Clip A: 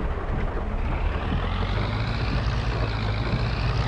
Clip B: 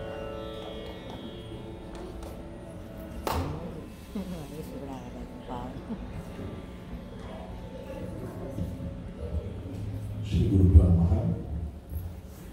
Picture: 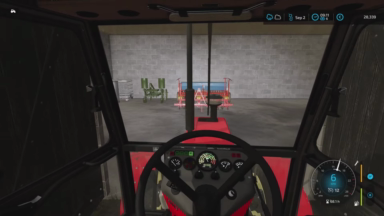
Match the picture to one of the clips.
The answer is A